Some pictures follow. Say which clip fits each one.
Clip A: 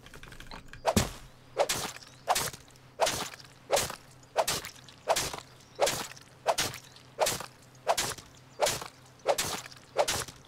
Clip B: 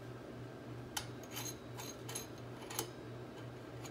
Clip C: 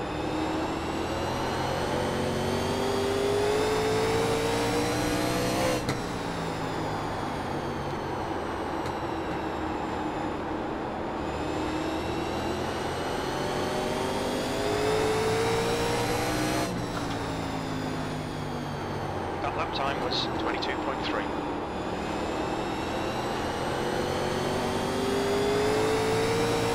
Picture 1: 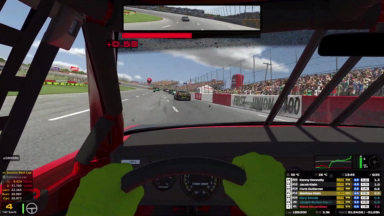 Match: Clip C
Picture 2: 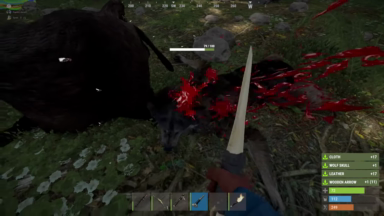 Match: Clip A